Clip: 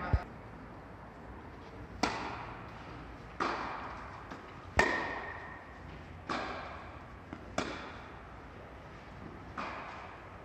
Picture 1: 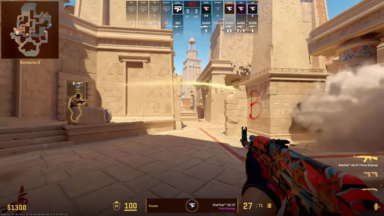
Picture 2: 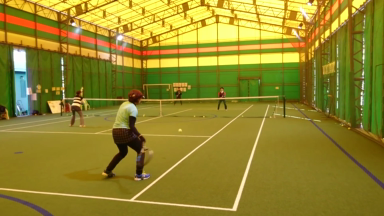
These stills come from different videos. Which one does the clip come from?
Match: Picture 2